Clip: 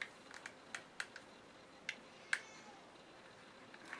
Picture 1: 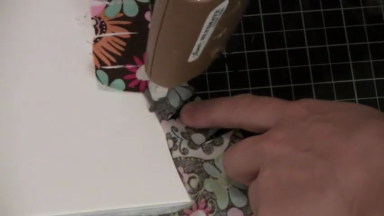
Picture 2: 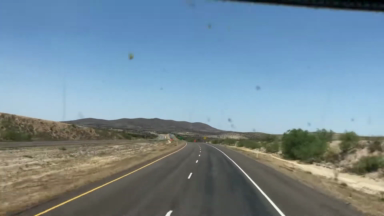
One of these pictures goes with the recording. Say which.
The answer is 1